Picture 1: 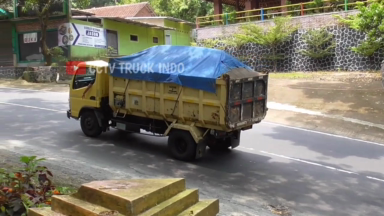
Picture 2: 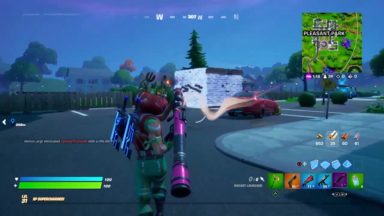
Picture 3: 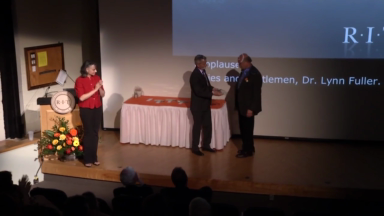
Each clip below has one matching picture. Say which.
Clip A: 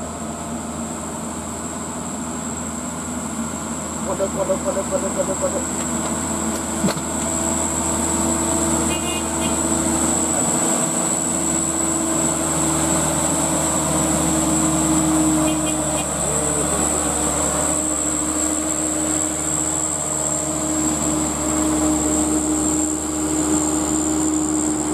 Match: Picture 1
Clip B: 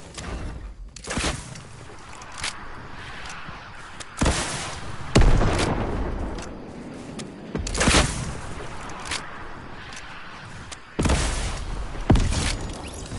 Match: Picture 2